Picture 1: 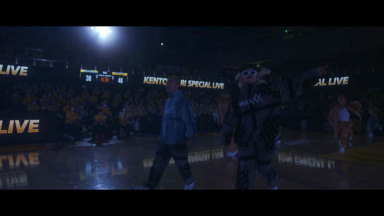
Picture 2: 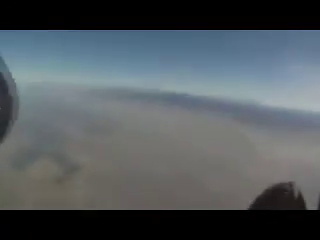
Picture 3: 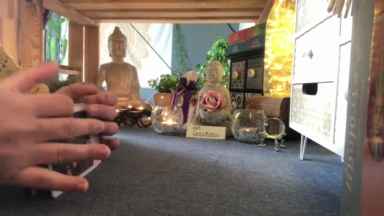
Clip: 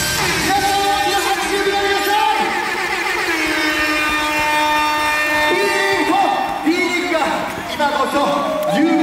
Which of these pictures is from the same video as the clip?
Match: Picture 1